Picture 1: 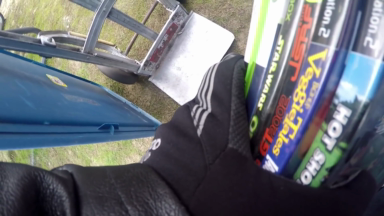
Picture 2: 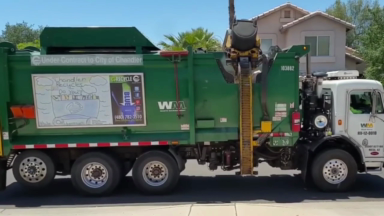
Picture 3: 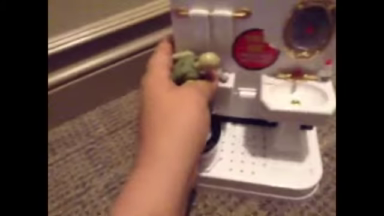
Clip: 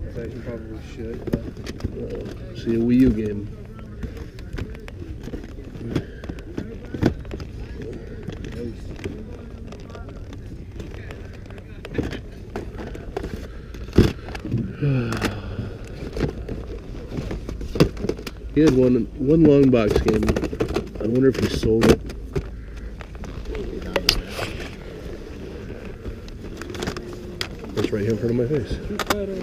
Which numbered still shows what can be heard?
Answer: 1